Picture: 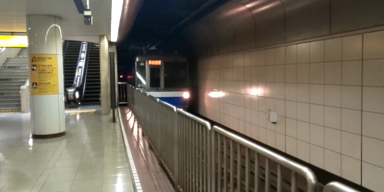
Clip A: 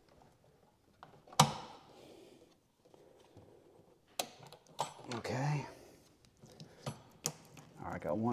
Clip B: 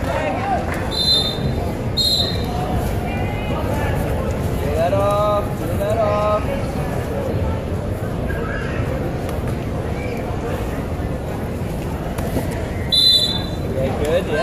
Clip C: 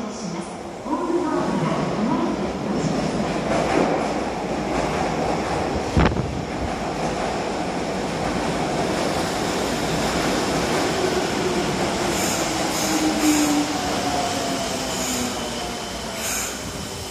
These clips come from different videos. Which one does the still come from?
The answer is C